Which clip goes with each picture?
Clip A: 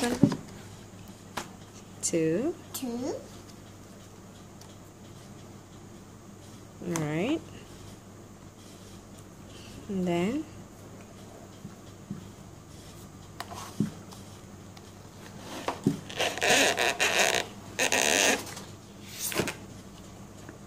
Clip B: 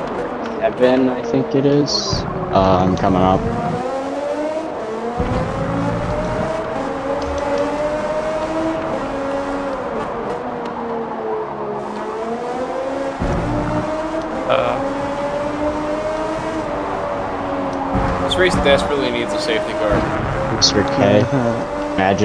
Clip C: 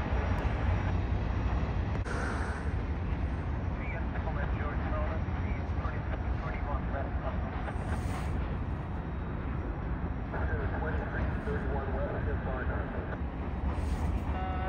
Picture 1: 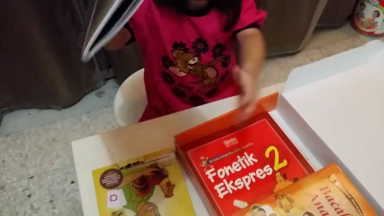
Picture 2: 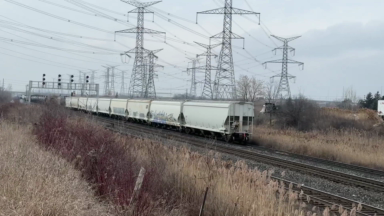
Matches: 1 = A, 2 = C